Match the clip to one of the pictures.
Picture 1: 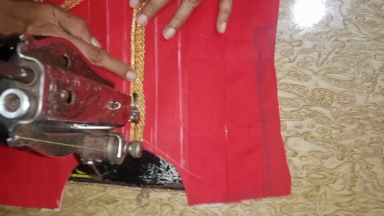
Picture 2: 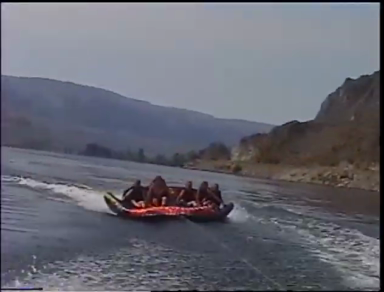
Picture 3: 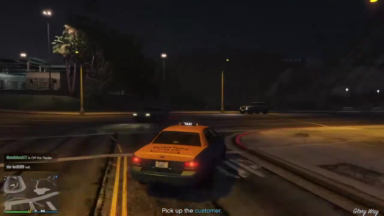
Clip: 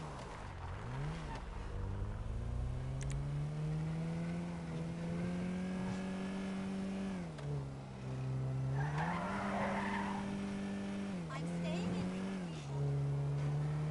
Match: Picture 3